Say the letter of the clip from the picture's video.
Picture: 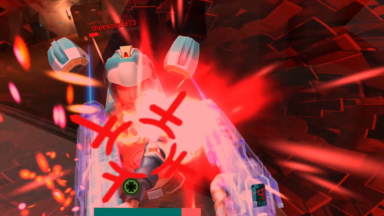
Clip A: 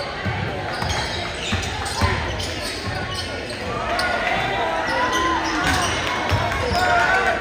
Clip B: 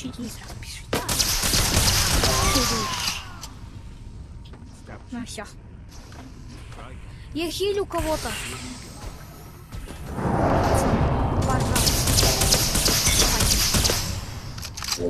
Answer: B